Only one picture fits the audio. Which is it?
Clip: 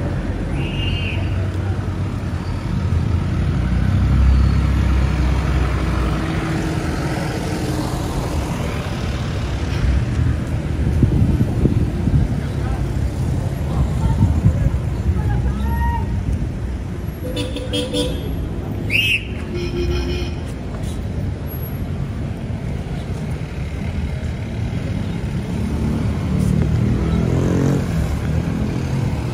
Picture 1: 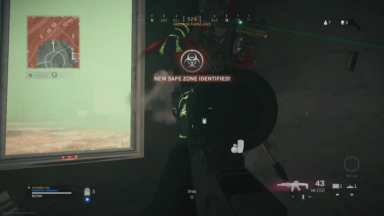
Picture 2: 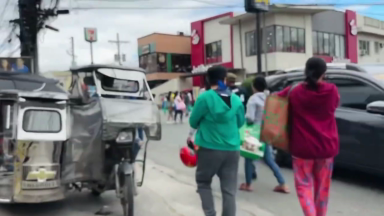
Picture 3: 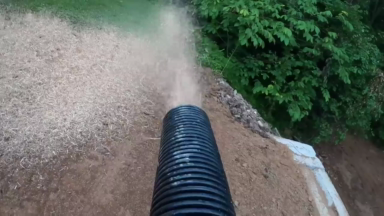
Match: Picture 2